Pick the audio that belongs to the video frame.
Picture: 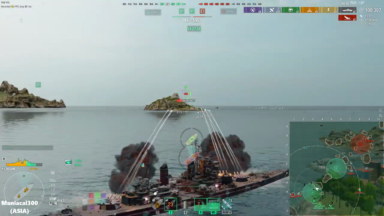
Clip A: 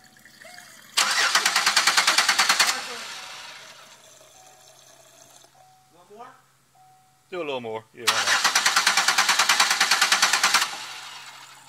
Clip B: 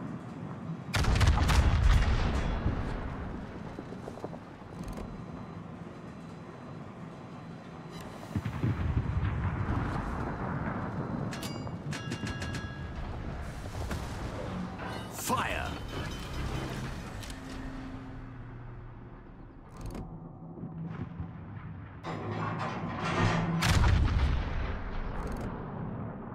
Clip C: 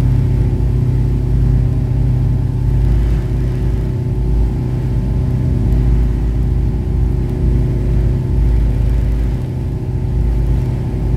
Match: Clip B